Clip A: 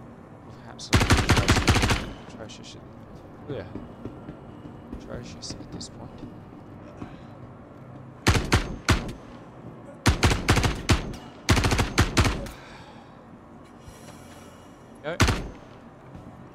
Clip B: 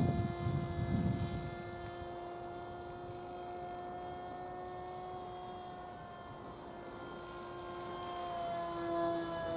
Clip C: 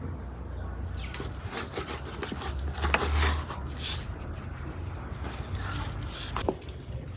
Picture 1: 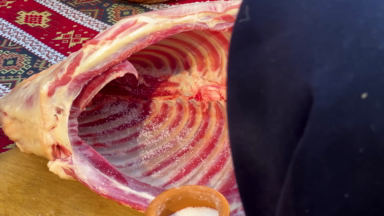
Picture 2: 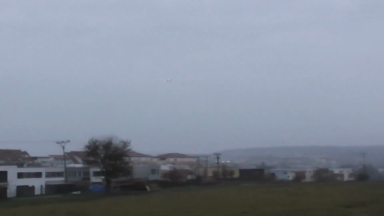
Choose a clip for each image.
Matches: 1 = C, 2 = B